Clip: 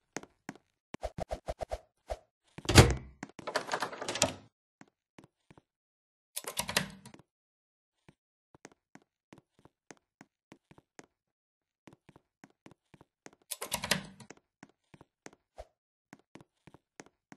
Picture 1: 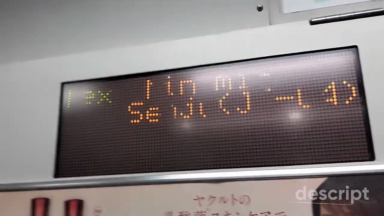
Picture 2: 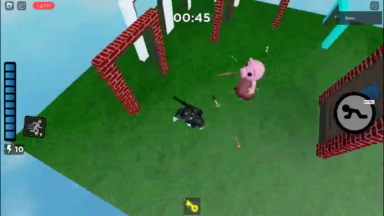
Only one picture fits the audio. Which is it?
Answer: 2